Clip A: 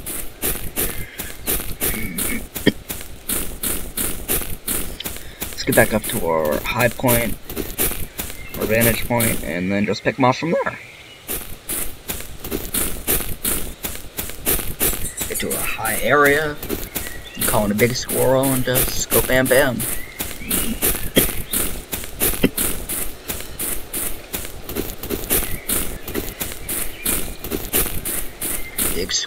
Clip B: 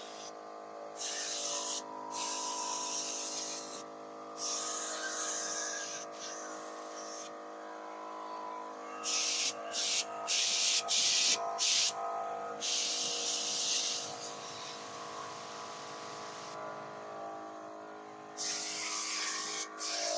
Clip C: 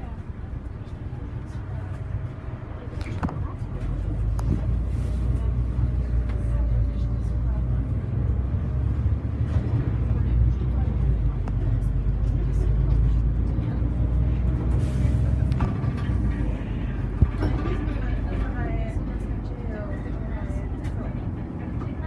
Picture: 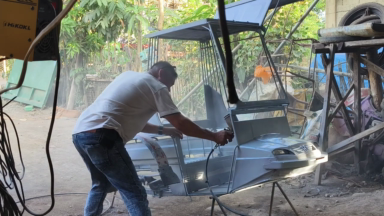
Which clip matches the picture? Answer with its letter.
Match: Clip B